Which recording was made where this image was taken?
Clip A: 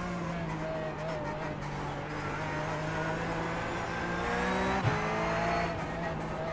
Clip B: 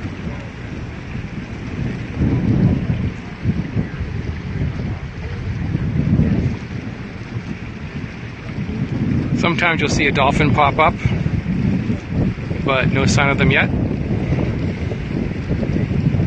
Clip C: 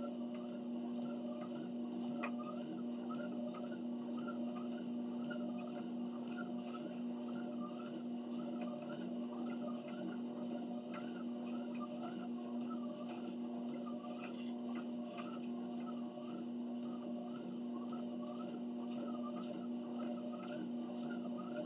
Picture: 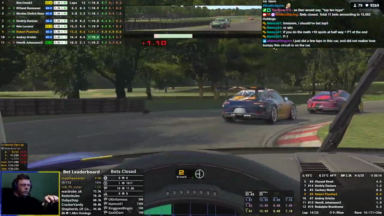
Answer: A